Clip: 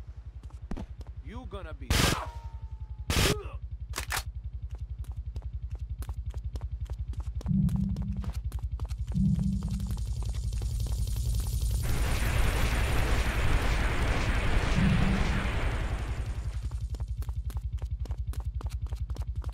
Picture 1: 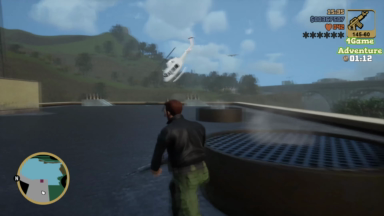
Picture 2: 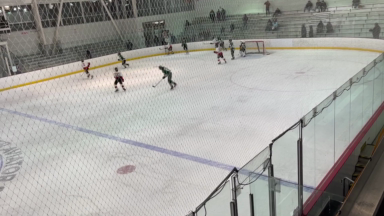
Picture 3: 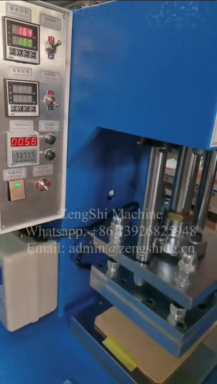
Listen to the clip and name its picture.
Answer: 1